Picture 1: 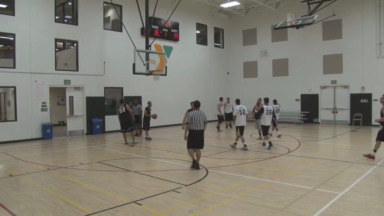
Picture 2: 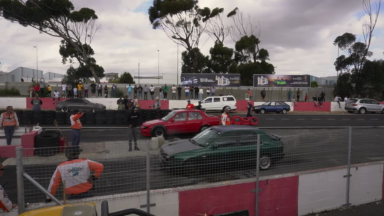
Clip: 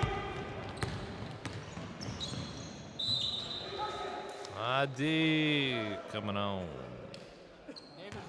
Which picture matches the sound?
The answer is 1